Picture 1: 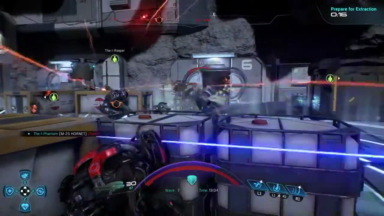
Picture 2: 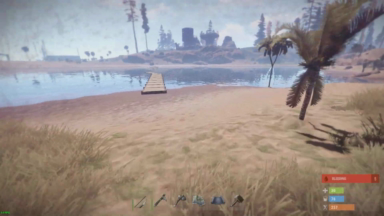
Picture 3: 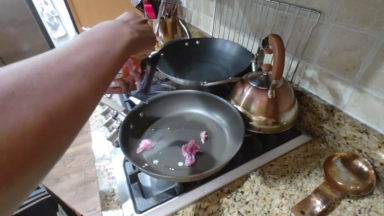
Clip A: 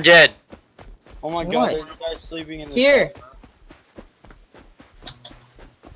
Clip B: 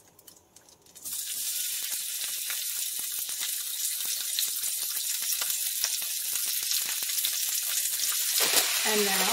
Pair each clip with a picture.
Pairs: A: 2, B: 3